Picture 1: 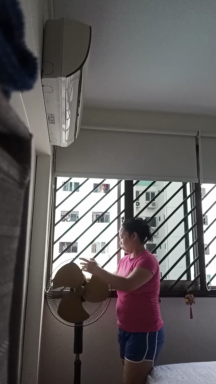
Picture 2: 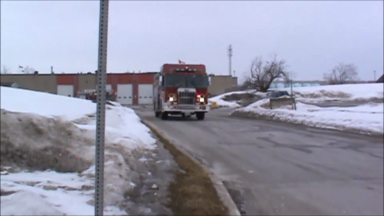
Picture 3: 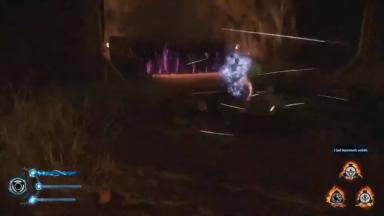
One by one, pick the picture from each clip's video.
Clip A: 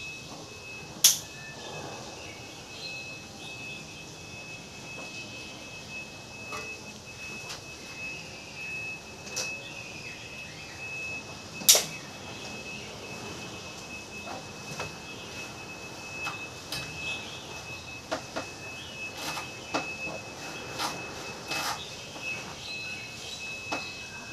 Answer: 1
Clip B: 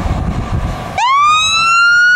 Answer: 2